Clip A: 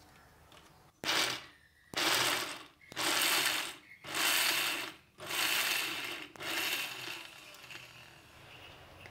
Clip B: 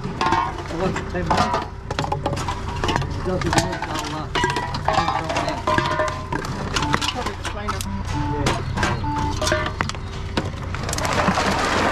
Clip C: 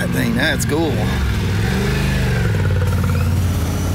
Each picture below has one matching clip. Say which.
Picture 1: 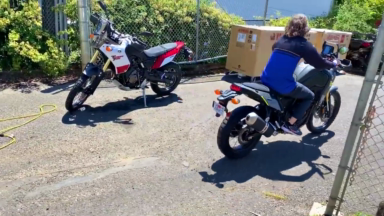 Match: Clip C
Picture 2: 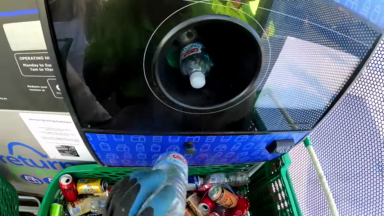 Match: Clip B